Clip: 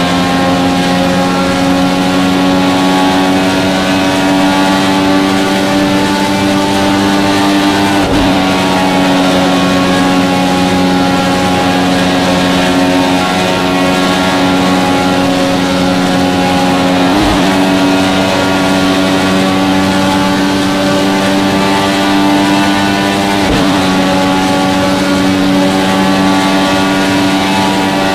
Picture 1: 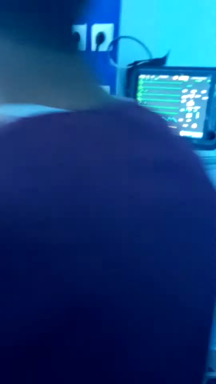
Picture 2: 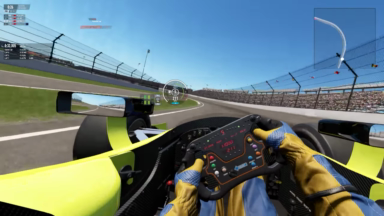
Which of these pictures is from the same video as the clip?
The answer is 2